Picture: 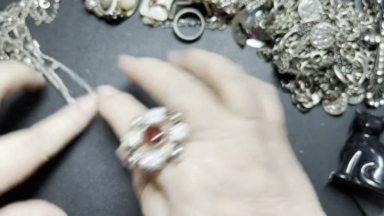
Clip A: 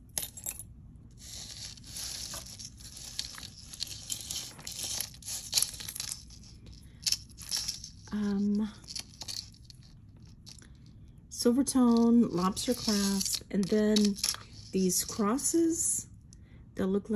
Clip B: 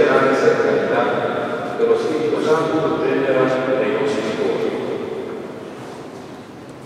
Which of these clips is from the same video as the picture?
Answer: A